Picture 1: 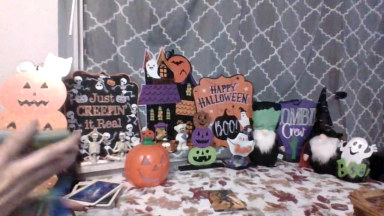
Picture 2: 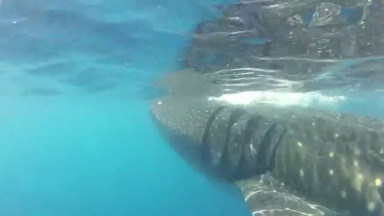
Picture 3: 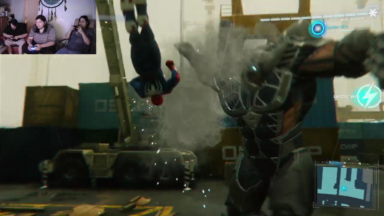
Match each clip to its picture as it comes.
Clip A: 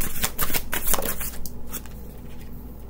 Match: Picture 1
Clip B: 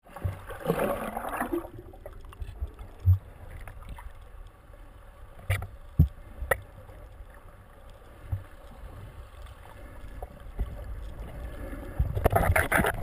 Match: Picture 2